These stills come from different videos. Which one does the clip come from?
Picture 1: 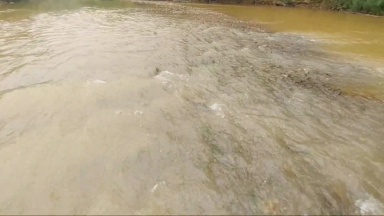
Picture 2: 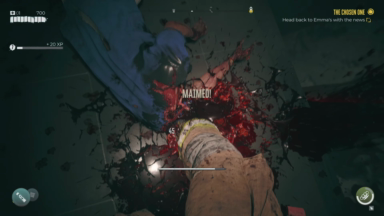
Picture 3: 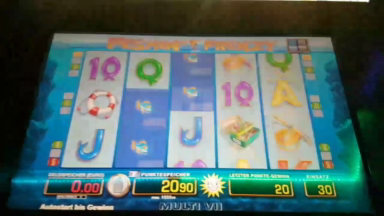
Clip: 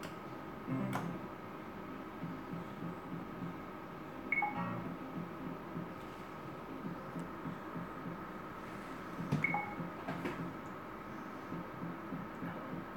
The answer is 3